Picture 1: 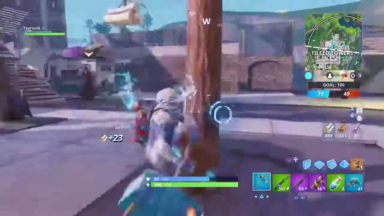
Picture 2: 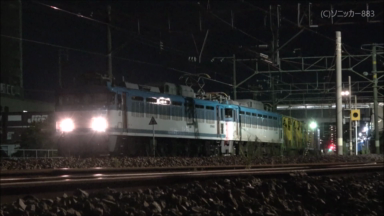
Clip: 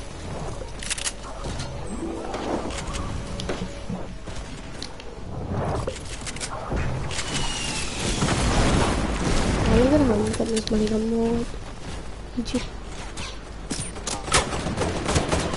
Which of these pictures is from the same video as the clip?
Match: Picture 1